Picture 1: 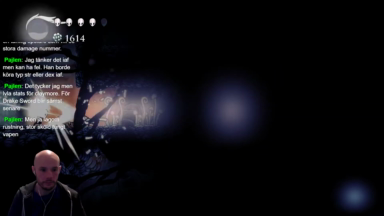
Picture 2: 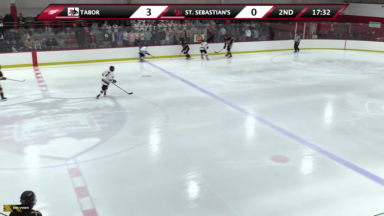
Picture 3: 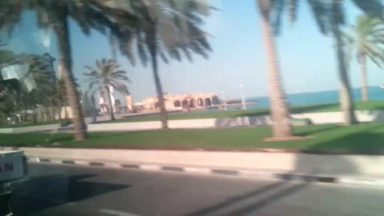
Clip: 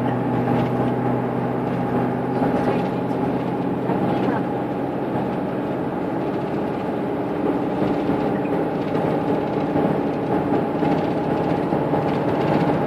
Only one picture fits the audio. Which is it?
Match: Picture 3